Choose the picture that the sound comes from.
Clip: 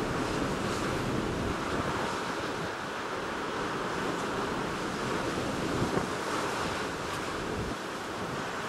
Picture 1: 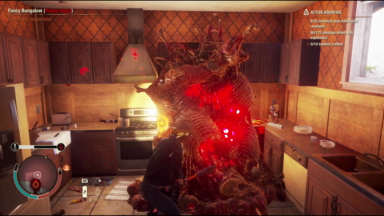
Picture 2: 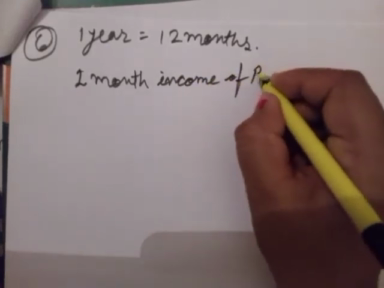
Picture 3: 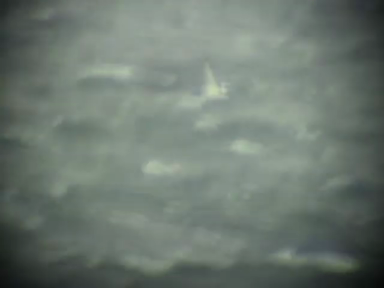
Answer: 3